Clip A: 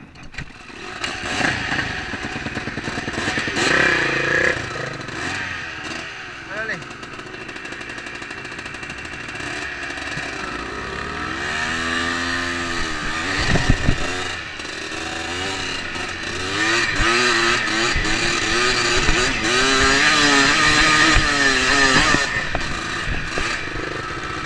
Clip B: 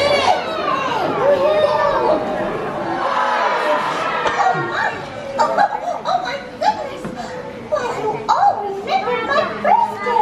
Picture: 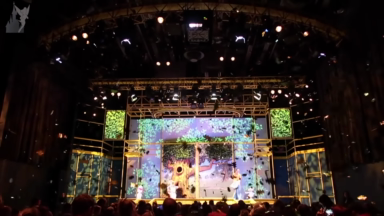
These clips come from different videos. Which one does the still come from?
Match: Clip B